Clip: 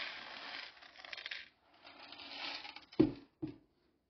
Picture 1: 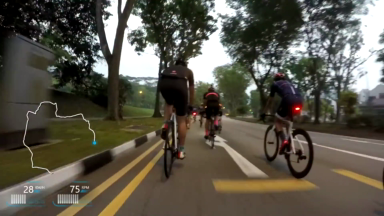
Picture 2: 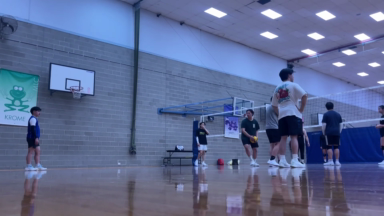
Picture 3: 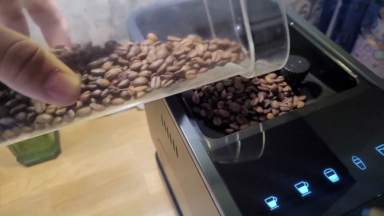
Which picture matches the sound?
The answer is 3